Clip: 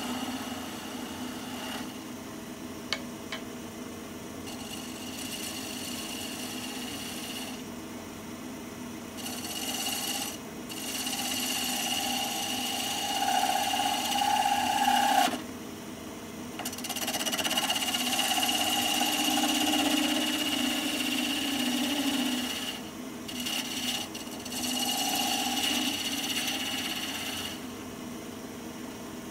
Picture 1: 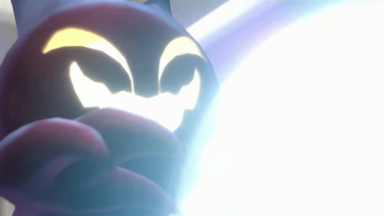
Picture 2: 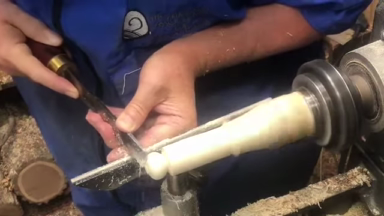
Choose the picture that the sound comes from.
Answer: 2